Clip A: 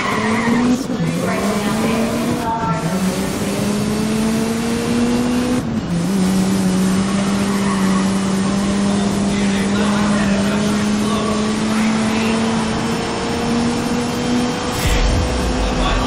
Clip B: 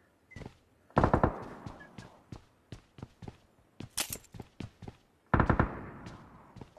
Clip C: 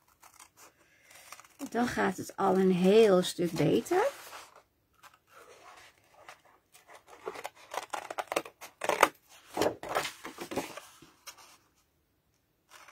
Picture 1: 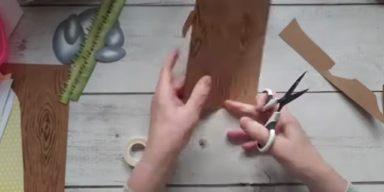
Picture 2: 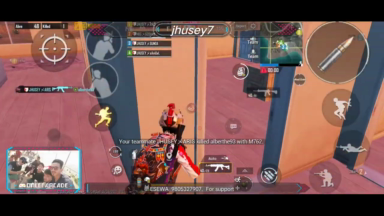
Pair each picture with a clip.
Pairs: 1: C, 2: B